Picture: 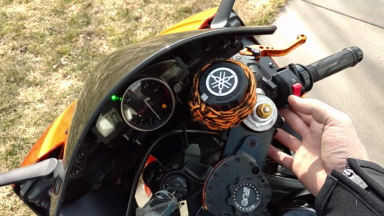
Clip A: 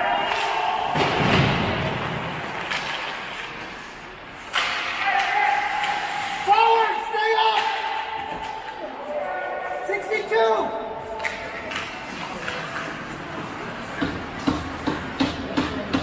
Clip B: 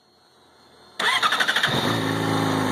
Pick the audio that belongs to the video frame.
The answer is B